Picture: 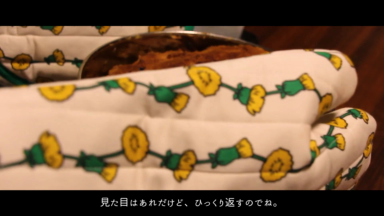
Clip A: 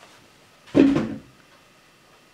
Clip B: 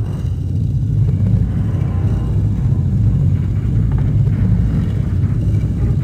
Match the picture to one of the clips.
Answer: A